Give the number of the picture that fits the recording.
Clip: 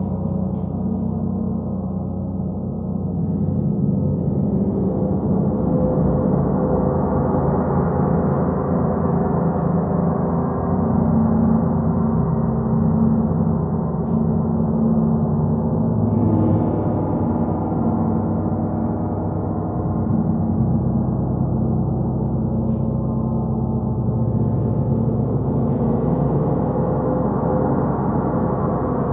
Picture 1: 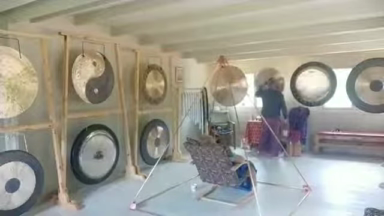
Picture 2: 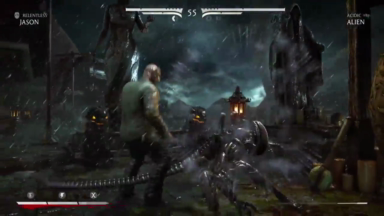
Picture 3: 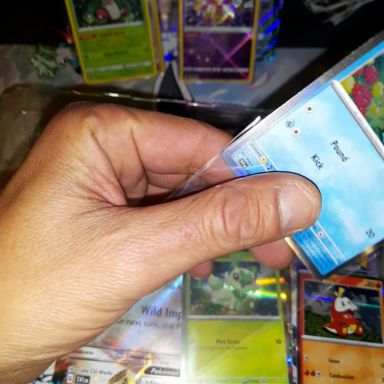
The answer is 1